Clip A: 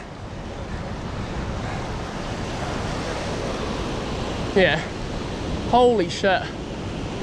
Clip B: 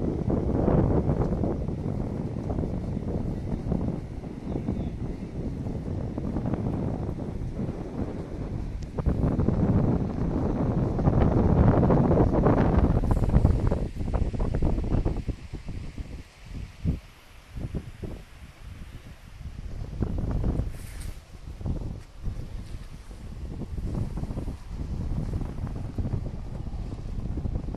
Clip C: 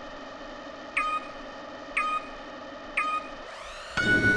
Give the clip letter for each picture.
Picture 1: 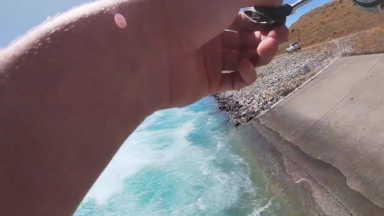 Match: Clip A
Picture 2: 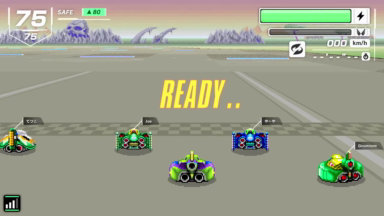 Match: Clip C